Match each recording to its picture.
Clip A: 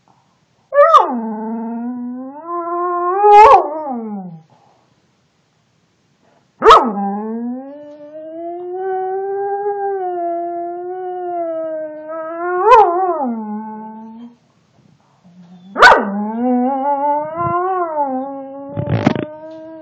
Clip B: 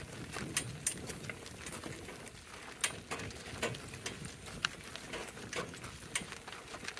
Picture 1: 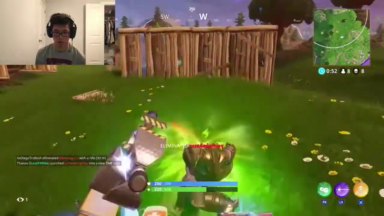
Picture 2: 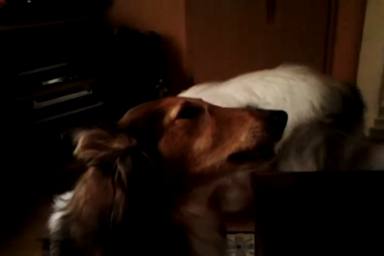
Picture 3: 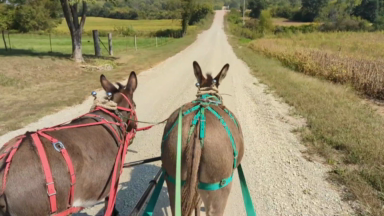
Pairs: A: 2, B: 3